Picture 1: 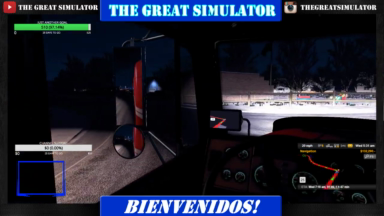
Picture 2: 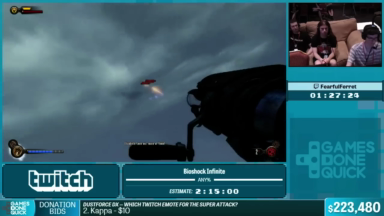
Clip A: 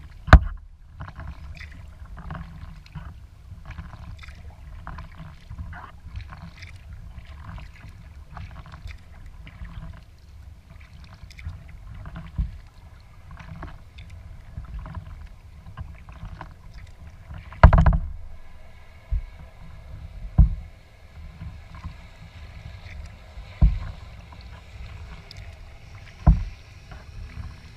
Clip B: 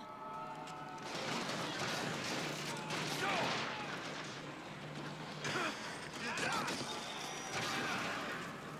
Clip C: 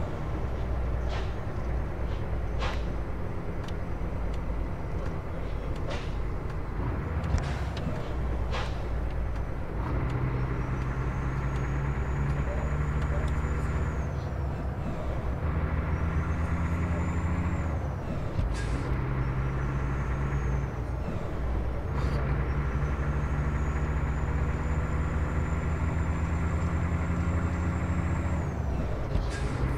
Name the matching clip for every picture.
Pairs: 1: C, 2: B